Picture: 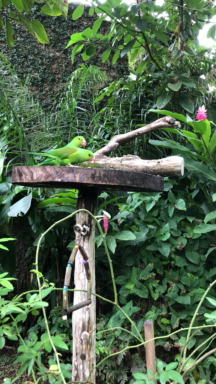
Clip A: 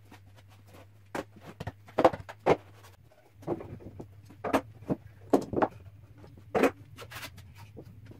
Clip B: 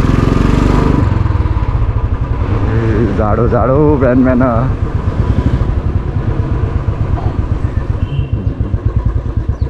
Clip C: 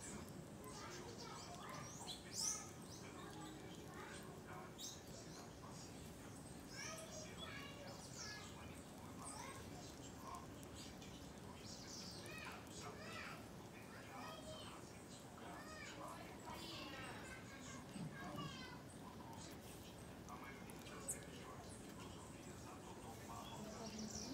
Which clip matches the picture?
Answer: C